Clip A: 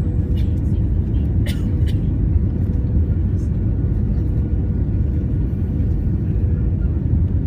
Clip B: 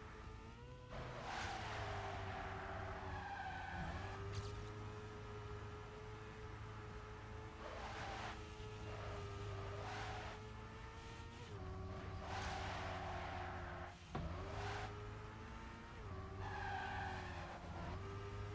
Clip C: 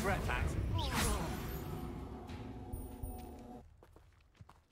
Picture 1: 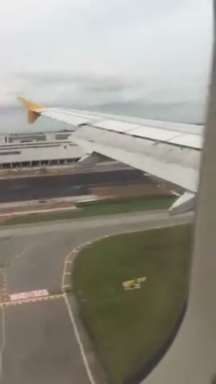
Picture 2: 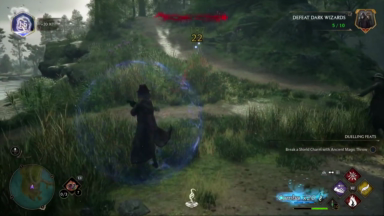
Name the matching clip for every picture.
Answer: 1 A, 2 C